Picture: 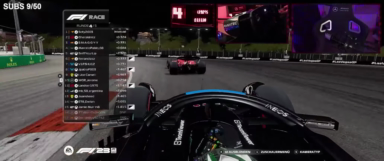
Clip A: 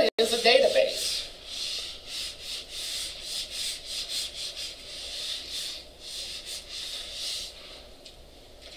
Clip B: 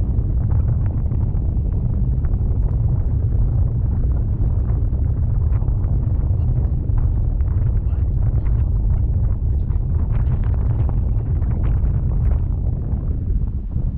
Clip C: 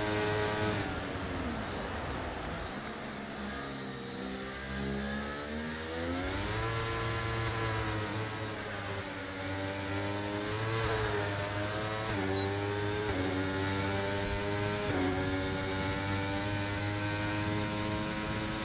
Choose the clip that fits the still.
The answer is C